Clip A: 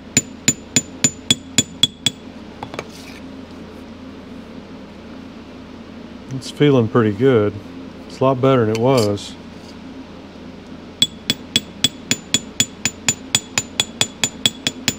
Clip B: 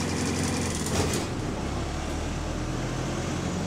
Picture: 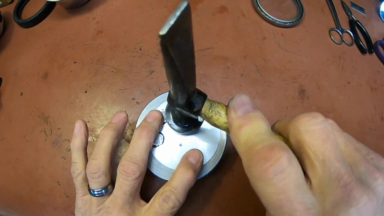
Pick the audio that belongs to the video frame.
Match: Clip A